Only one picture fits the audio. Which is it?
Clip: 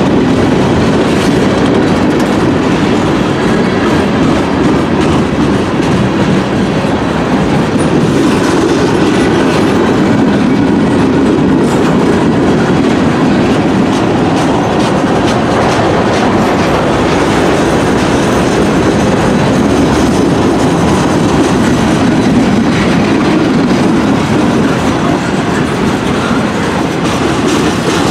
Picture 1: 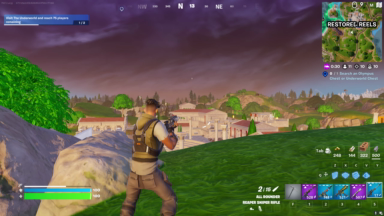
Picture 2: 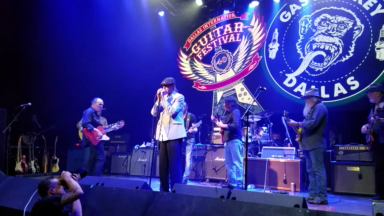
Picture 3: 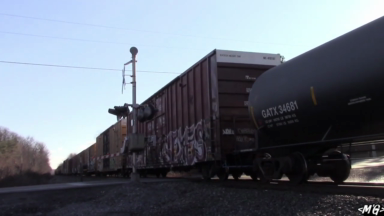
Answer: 3